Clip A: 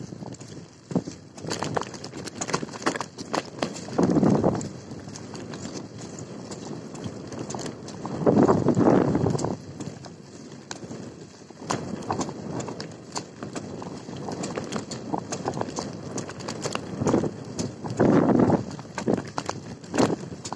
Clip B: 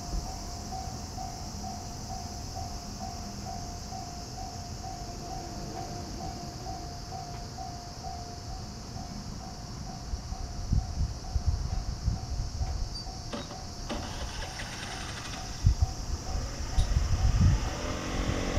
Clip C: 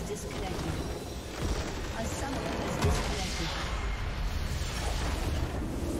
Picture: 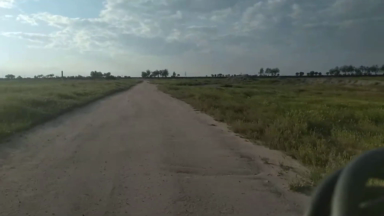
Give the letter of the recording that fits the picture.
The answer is A